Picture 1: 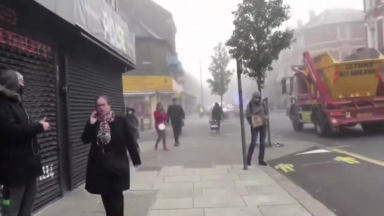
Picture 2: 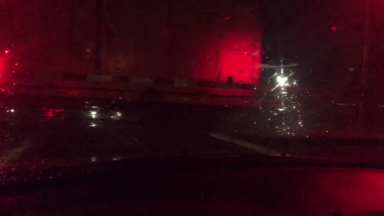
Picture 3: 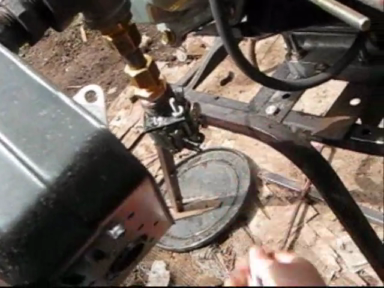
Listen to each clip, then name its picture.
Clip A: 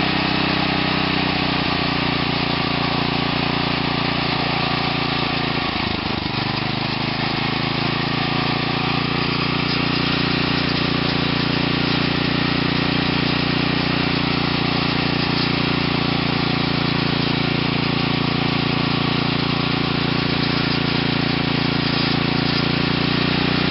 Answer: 3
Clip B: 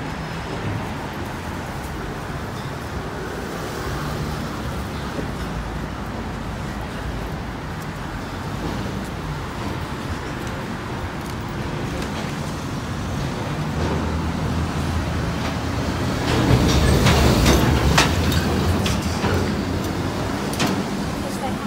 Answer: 1